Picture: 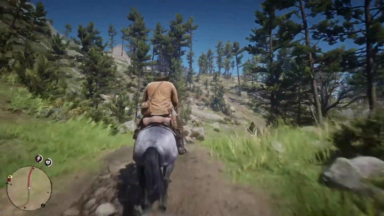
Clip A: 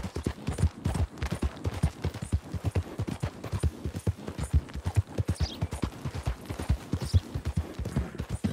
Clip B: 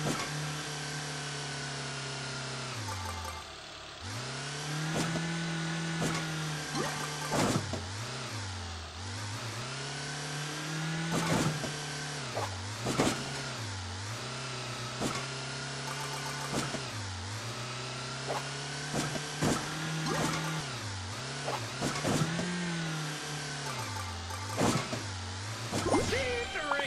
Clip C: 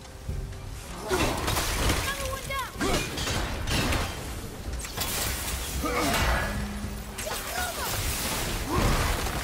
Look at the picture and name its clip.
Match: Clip A